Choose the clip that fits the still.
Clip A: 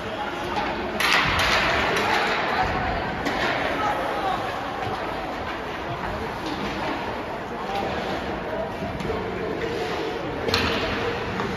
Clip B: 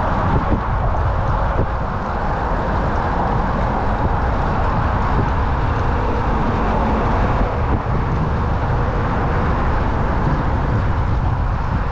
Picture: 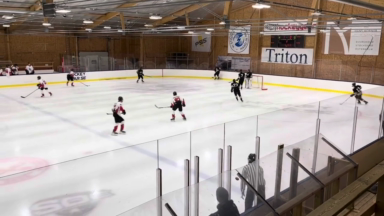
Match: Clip A